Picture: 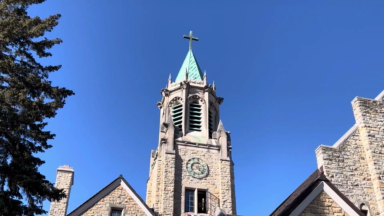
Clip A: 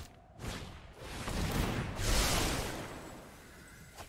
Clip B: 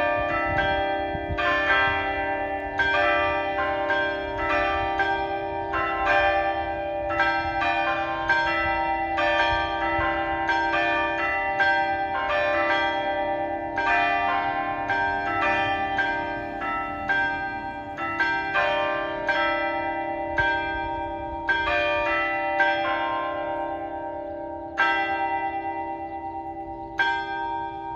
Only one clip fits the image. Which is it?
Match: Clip B